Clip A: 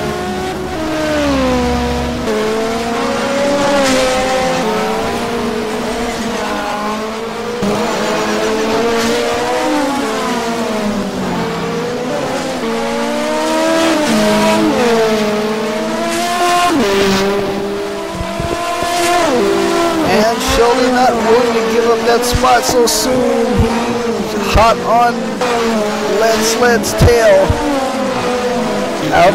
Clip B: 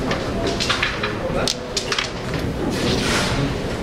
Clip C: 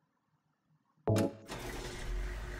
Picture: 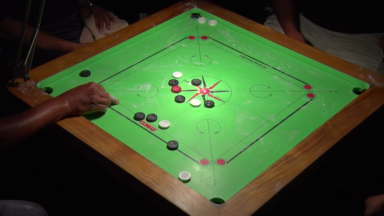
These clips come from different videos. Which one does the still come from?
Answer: B